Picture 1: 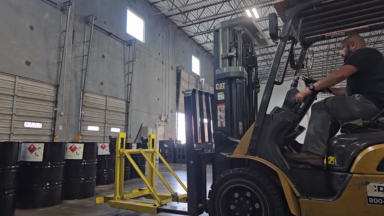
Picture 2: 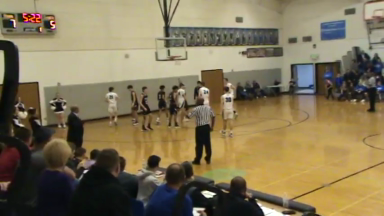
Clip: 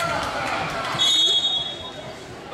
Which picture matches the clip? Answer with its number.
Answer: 2